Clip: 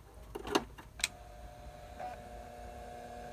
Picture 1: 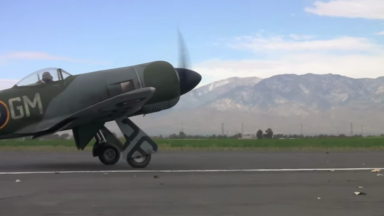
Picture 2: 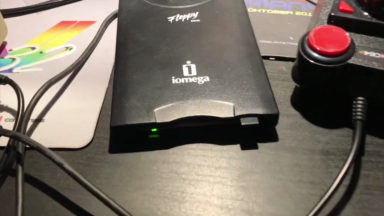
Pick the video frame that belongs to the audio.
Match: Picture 2